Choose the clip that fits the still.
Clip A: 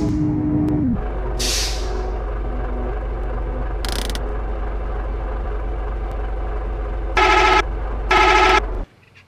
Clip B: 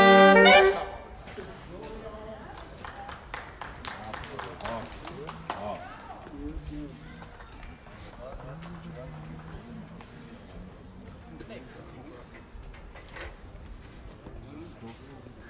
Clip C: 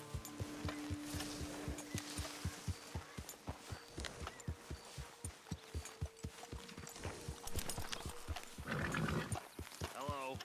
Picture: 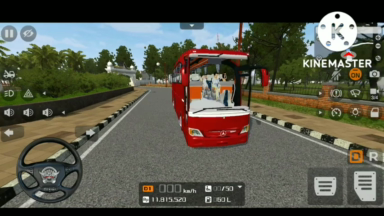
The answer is A